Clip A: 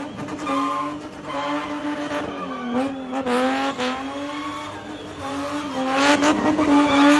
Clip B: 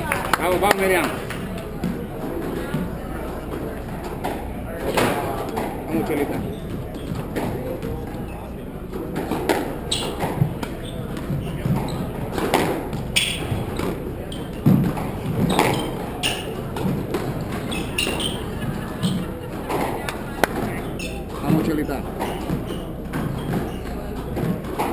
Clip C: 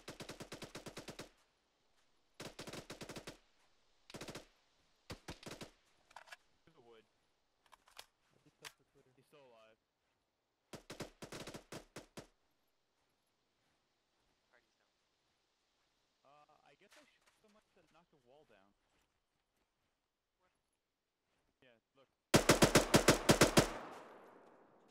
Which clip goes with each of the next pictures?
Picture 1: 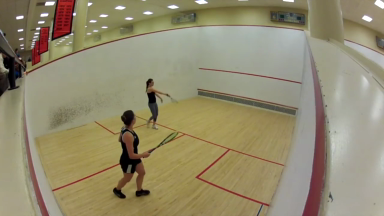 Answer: B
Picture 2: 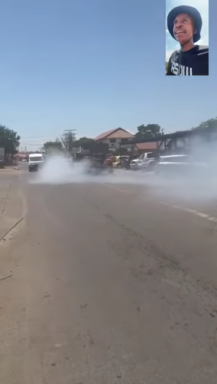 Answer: A